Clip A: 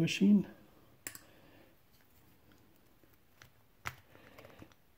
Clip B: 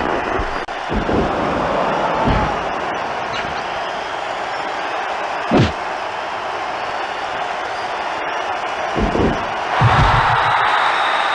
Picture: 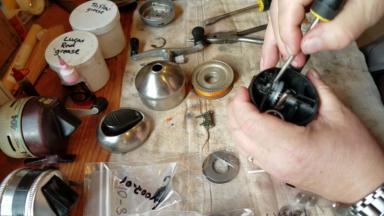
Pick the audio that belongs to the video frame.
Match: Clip A